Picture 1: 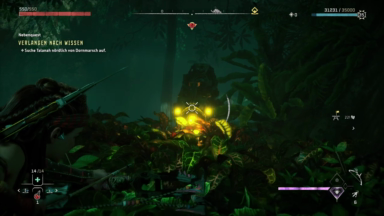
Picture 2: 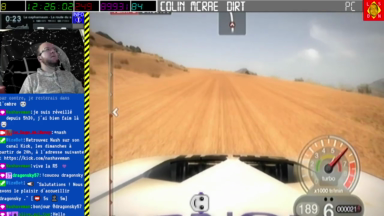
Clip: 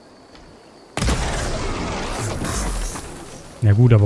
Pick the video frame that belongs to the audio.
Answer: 1